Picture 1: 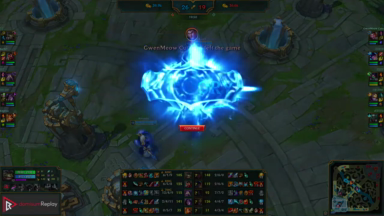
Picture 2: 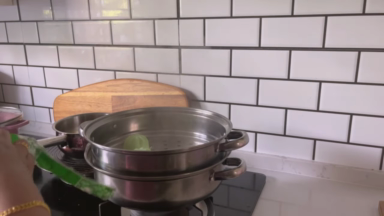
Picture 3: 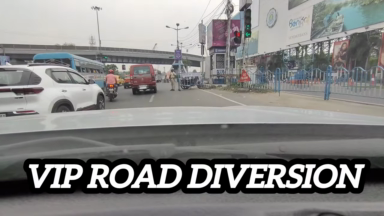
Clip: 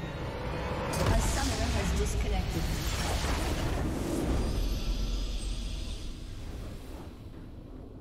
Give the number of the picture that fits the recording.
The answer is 1